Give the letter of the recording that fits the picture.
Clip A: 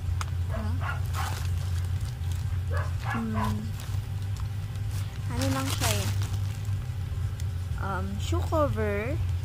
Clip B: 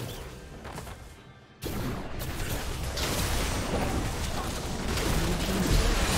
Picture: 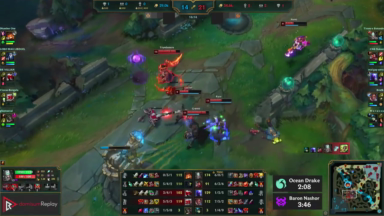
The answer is B